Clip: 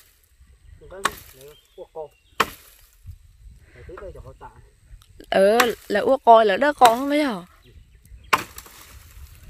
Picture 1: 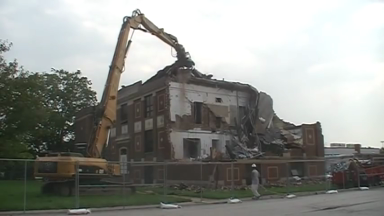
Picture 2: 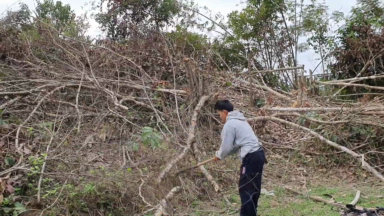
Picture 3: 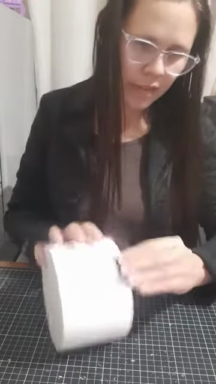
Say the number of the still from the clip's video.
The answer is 2